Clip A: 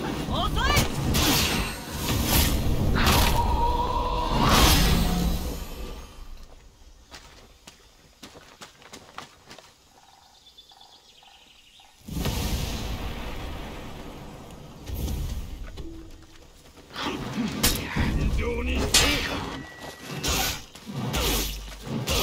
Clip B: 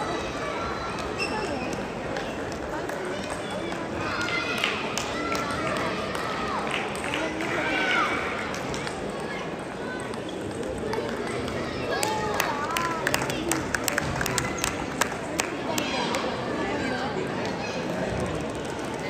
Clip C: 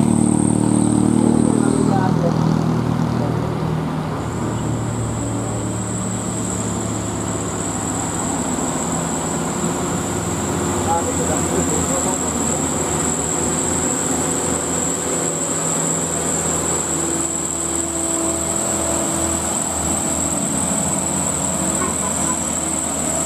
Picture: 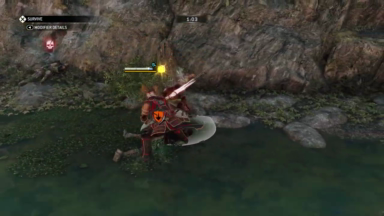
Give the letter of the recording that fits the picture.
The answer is A